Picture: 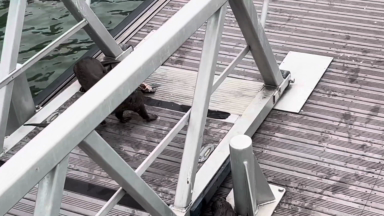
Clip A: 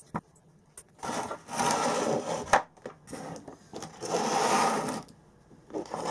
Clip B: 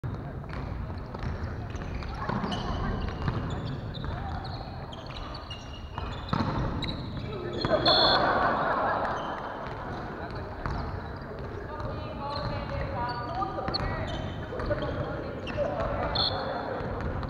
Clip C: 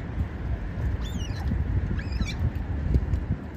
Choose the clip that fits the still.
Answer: C